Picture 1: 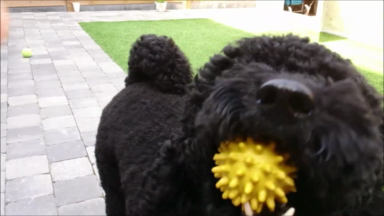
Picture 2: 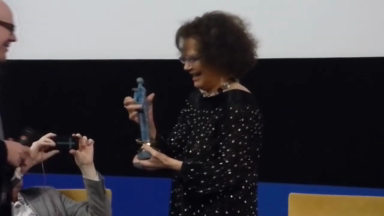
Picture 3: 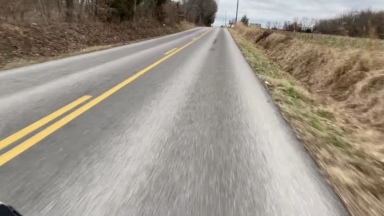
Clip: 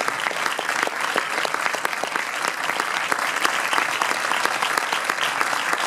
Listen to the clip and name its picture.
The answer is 2